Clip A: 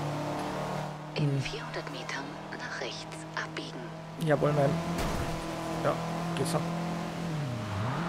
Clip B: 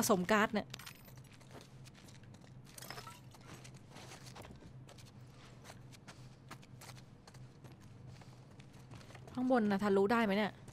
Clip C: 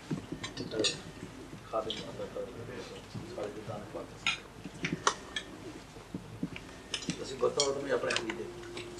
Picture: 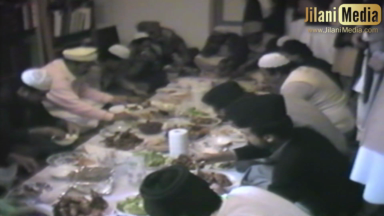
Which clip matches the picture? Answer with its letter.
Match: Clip C